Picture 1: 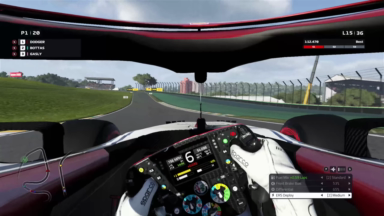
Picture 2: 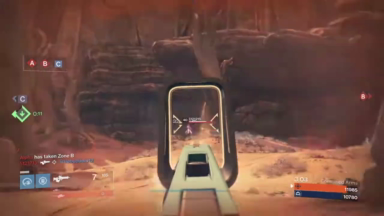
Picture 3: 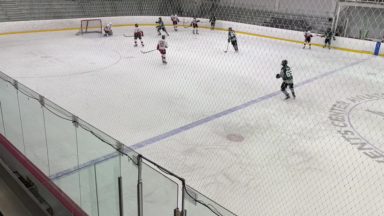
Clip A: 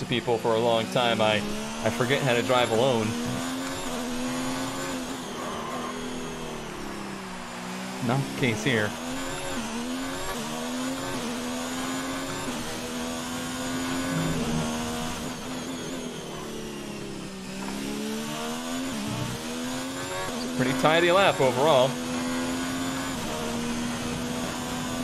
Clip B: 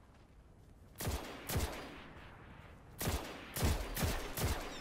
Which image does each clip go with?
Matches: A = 1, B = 2